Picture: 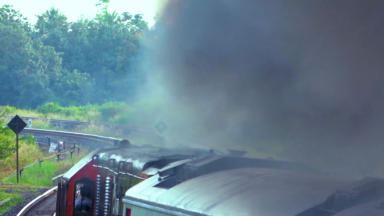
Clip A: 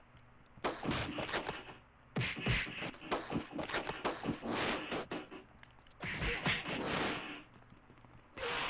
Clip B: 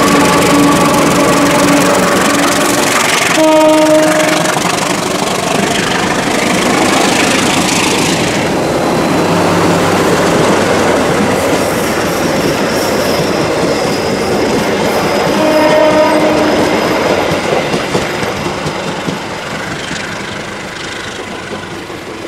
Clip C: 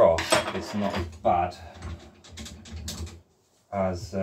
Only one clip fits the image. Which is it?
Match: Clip B